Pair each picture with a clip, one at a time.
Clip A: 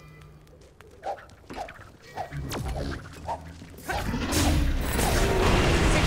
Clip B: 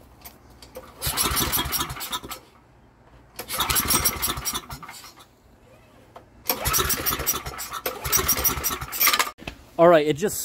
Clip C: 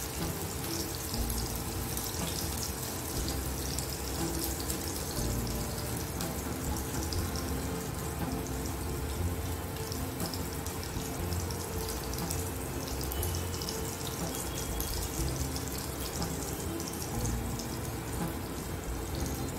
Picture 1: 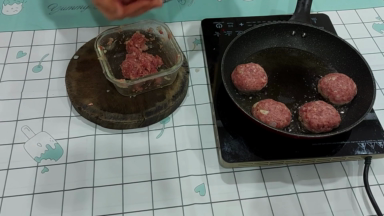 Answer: C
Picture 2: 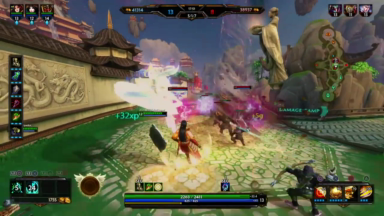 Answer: A